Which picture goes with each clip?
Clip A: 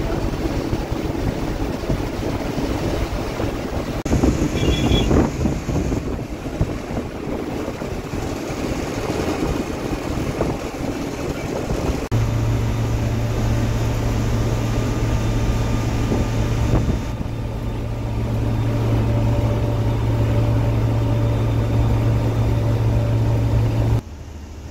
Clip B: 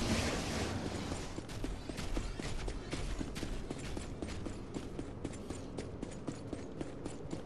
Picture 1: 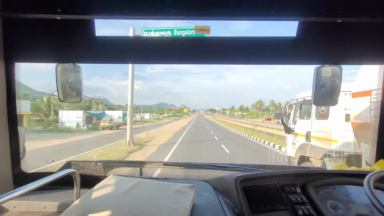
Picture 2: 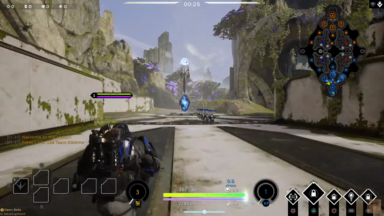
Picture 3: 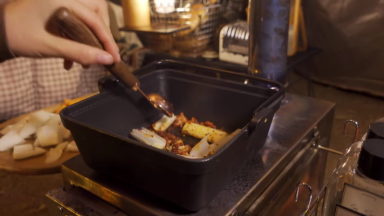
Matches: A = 1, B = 2